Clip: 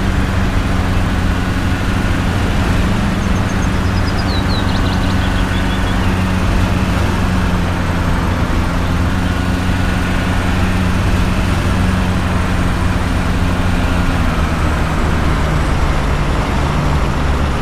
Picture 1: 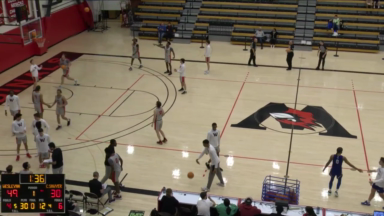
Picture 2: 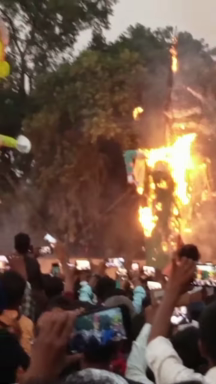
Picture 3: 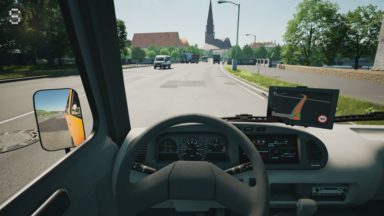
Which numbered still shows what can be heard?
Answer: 3